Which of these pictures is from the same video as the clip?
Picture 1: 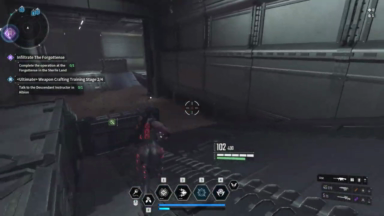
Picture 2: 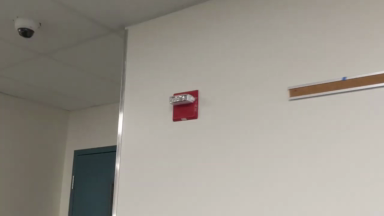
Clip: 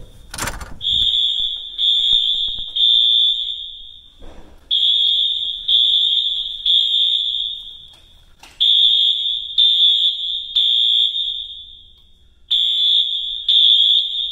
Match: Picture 2